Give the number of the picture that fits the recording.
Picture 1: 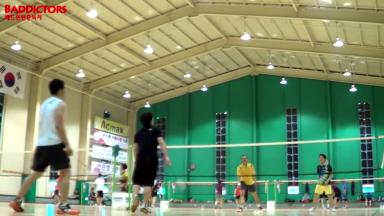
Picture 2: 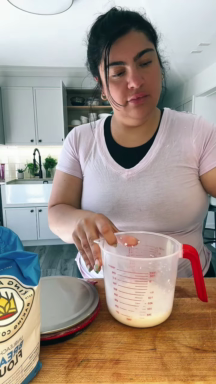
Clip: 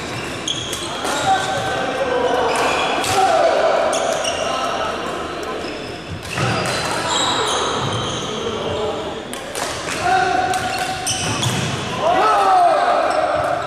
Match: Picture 1